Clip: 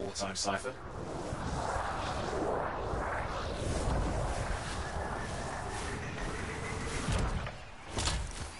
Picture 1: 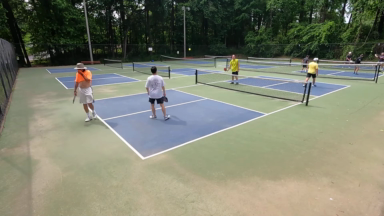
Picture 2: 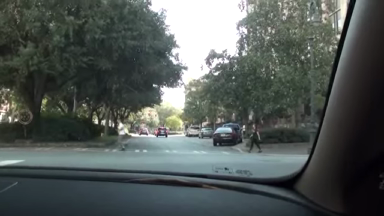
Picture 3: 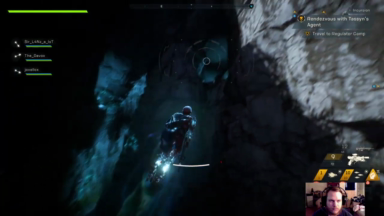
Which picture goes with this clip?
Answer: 3